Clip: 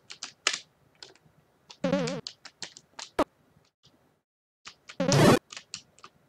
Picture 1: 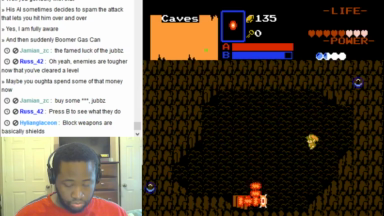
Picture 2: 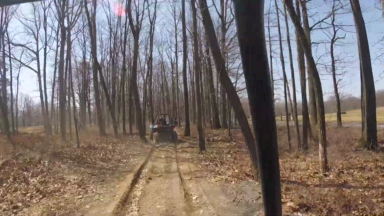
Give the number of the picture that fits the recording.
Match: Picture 1